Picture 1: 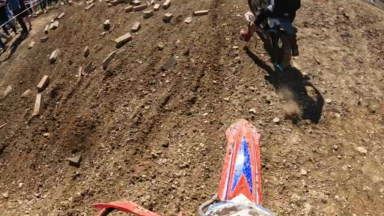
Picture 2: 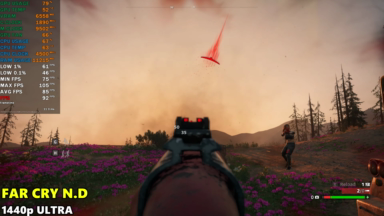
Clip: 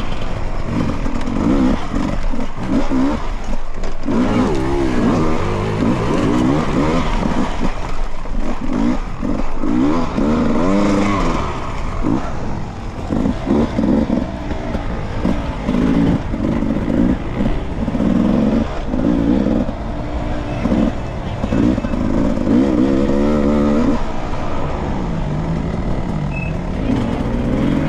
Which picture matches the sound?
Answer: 1